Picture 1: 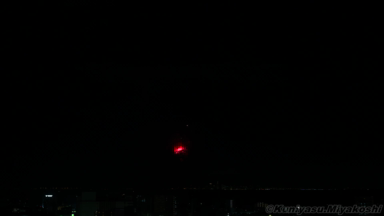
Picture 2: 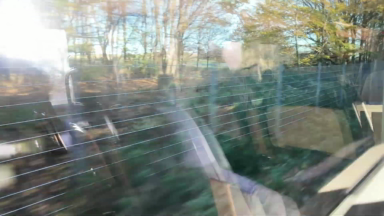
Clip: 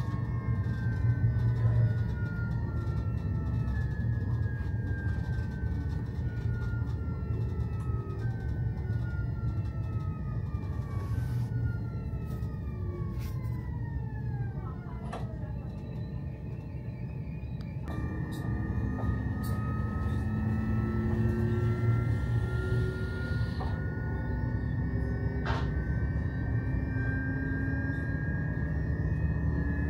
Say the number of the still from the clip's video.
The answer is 2